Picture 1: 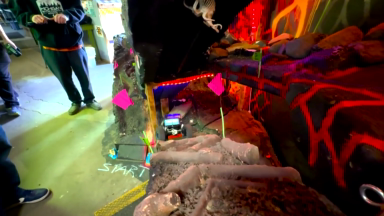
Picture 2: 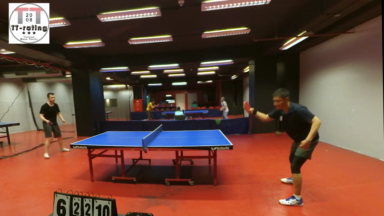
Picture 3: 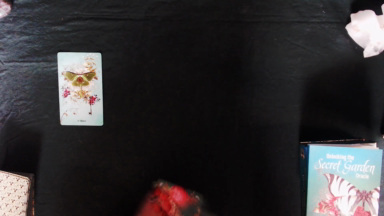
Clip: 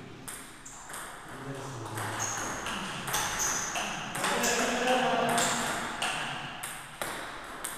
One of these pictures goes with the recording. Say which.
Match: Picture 2